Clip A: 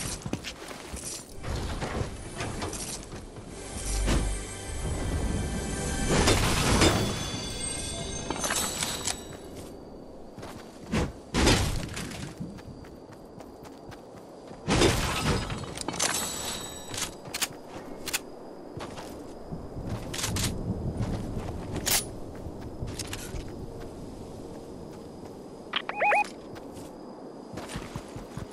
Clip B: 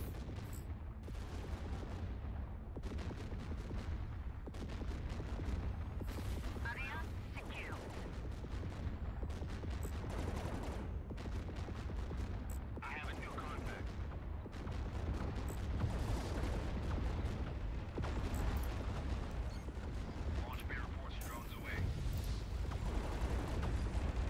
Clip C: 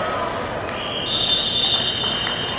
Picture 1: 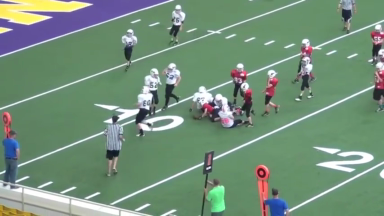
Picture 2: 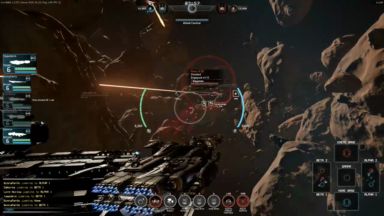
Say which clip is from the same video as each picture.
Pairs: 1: C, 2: B